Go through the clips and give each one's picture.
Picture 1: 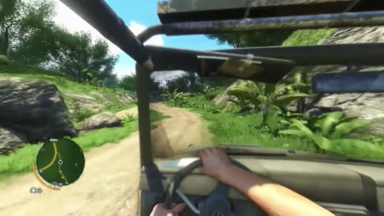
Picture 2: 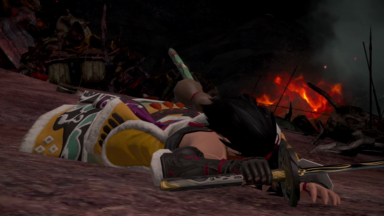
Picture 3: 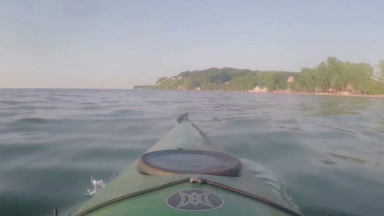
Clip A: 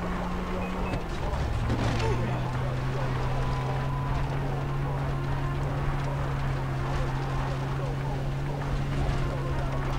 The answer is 1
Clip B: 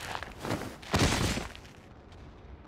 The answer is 2